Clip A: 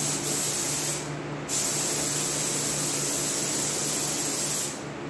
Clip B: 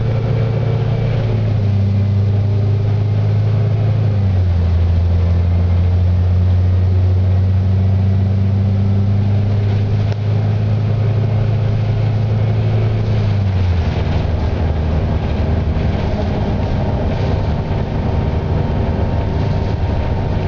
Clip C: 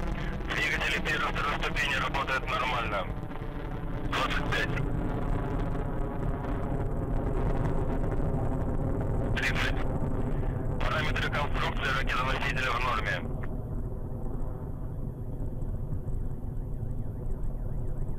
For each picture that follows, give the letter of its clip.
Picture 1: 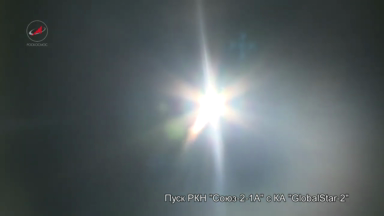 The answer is C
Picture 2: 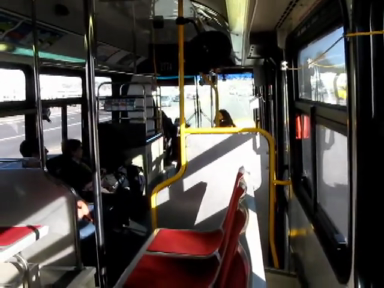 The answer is B